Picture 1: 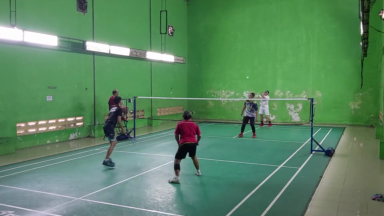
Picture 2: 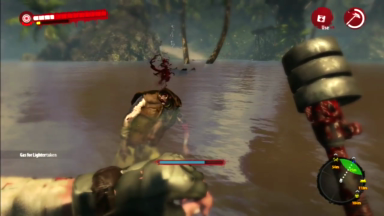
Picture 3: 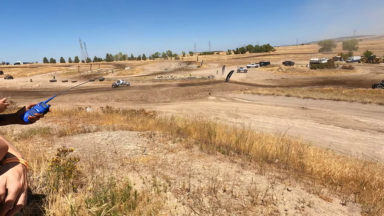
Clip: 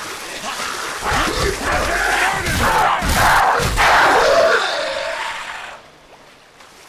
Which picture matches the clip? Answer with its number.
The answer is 2